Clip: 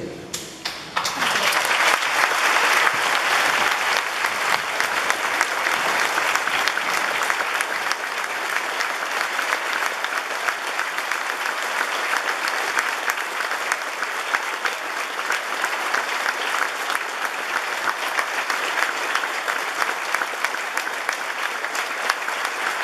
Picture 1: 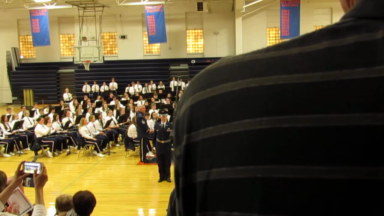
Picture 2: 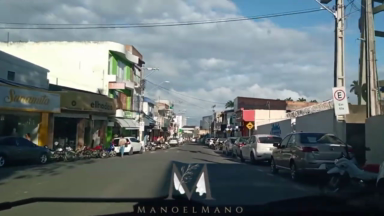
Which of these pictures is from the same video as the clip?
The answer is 1